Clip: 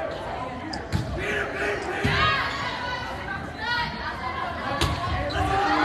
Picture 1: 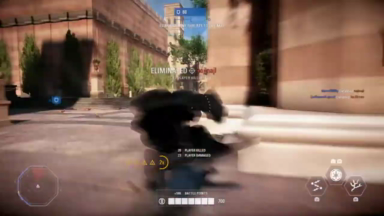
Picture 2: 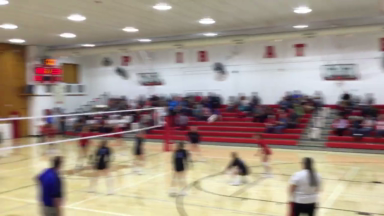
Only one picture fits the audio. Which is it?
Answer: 2